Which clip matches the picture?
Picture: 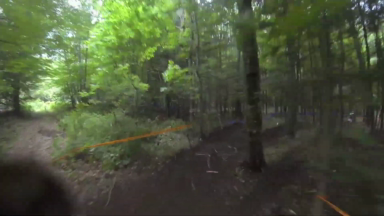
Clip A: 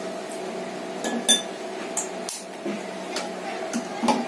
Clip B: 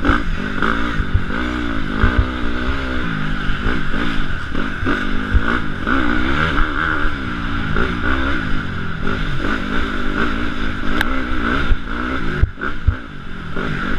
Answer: B